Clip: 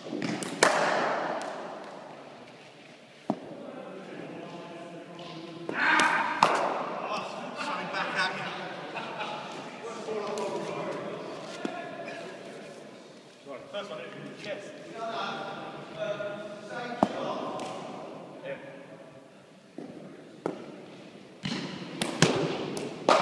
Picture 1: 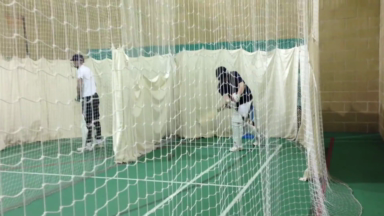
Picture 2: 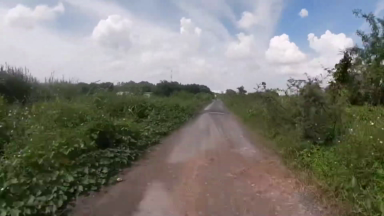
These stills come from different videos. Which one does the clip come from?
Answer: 1